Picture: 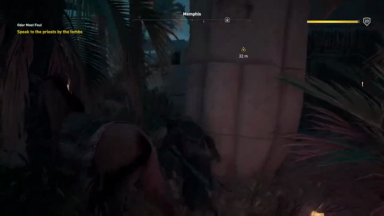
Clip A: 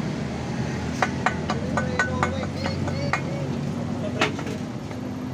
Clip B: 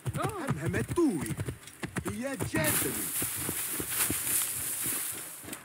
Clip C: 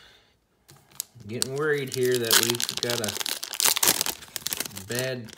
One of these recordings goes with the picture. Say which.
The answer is B